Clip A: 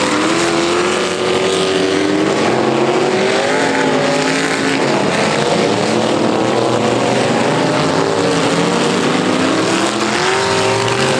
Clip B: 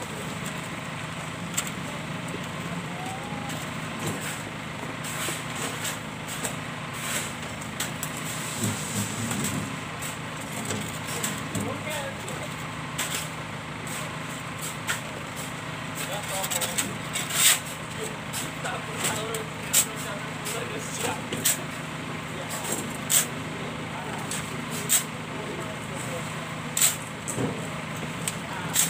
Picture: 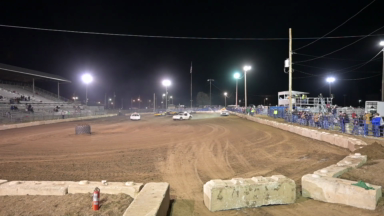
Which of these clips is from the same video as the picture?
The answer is A